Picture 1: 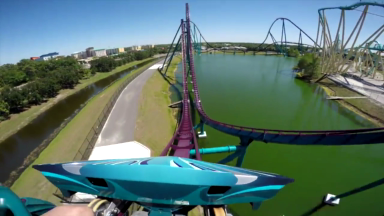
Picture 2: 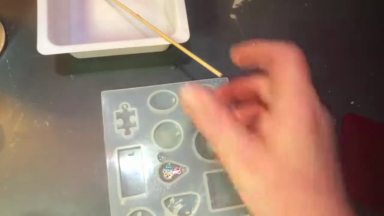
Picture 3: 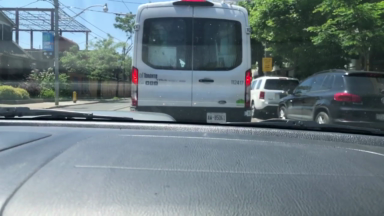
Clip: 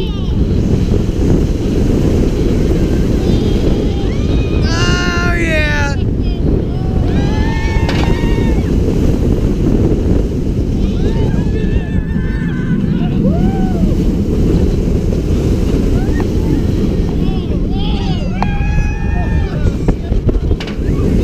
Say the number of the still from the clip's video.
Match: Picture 1